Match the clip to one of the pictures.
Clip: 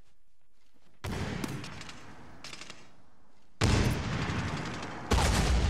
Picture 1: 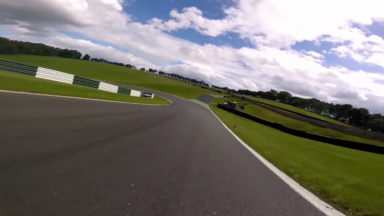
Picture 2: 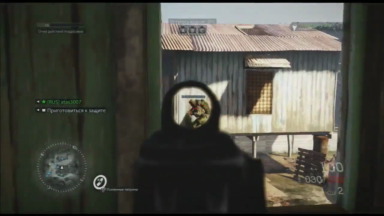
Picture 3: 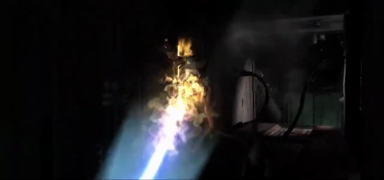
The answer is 2